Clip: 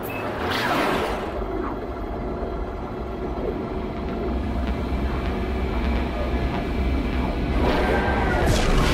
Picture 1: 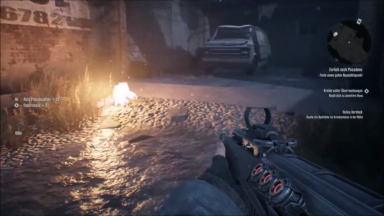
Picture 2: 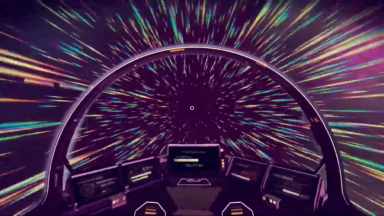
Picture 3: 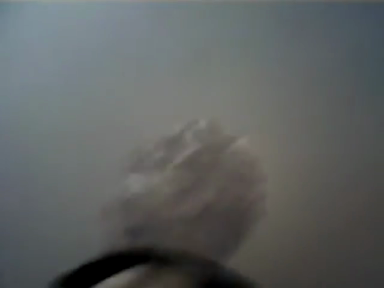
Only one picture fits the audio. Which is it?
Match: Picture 2